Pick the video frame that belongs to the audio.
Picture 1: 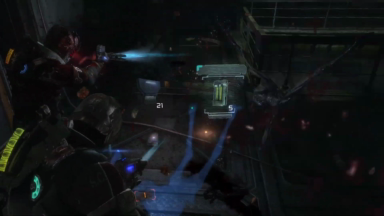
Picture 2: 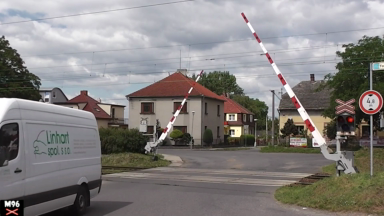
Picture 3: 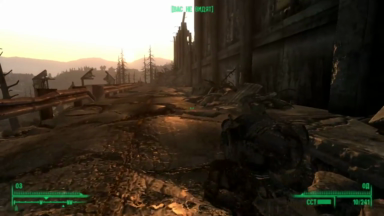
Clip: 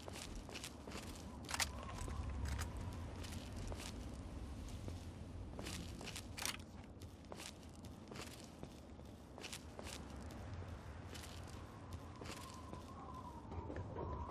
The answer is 3